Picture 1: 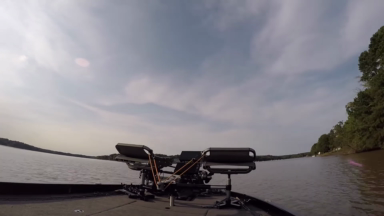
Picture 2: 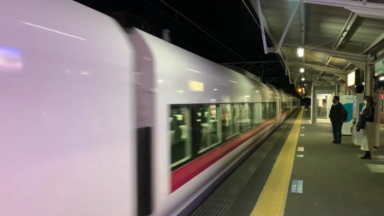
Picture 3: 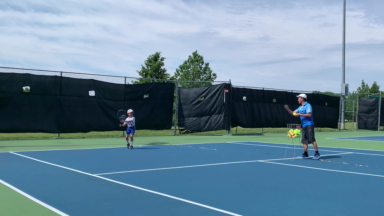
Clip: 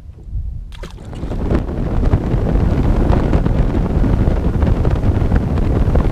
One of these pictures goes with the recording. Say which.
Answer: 1